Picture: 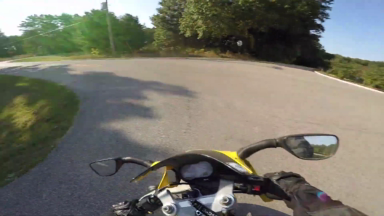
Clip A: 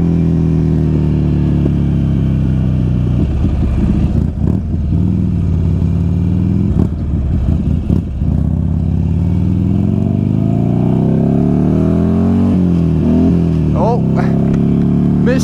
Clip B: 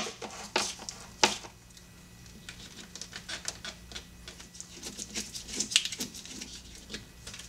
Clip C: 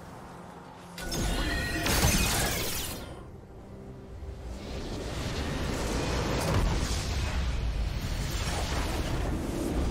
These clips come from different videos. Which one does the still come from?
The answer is A